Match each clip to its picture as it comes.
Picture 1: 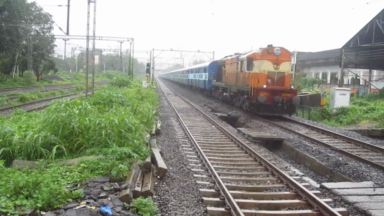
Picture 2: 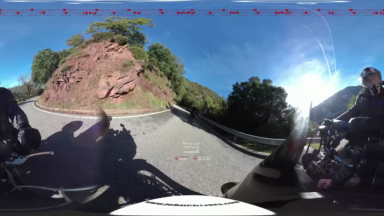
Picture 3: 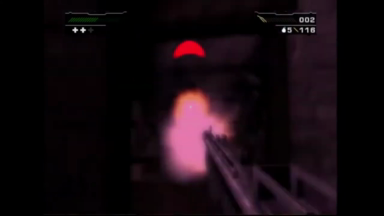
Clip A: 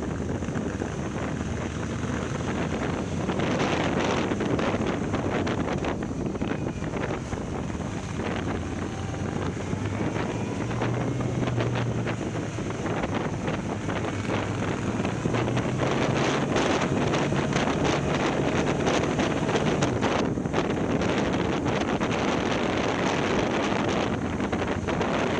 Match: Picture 2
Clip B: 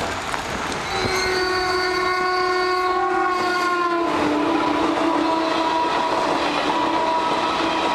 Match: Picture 1